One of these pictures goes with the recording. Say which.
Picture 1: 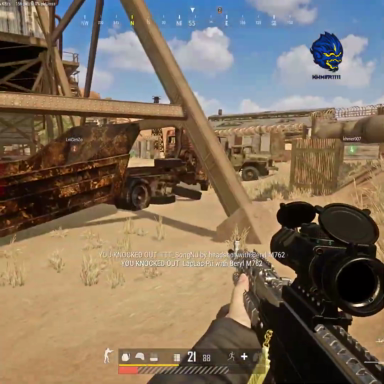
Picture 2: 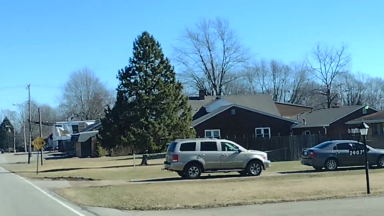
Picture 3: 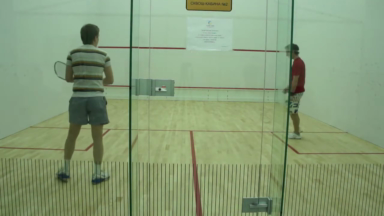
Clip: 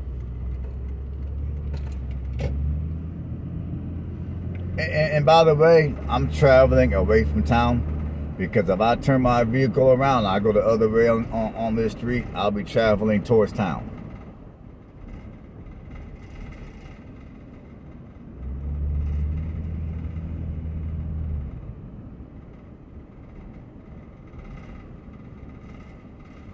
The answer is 2